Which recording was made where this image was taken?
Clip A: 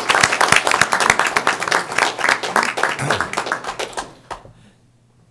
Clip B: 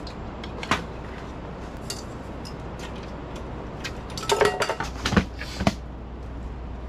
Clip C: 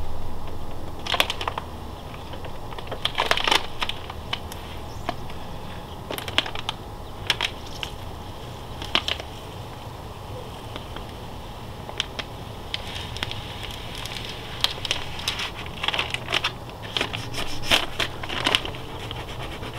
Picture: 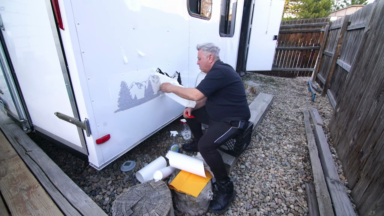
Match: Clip C